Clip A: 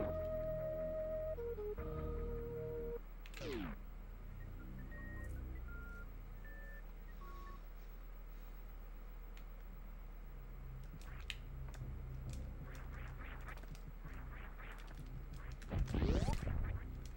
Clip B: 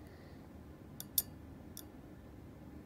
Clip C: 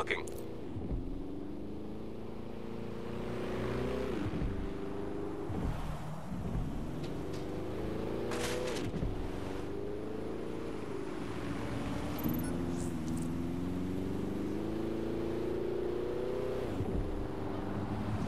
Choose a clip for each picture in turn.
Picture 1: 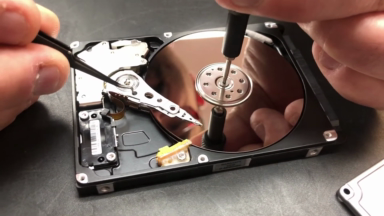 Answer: B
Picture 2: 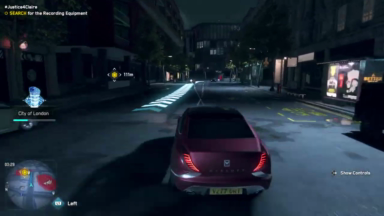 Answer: C